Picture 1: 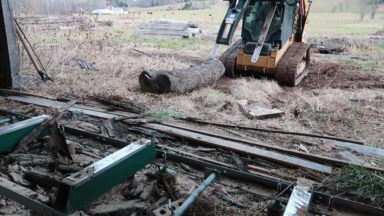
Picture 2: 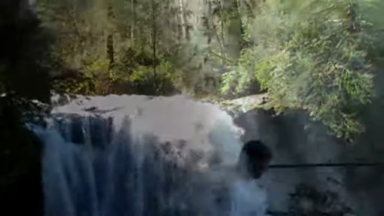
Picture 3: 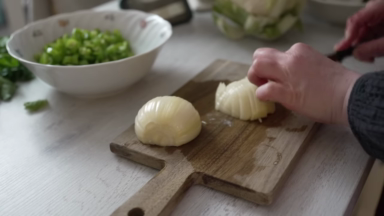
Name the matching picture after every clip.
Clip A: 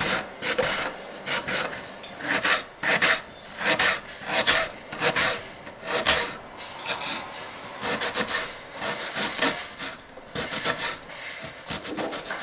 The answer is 3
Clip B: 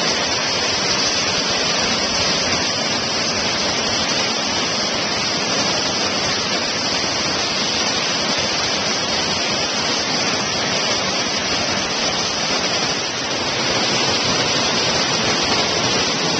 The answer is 2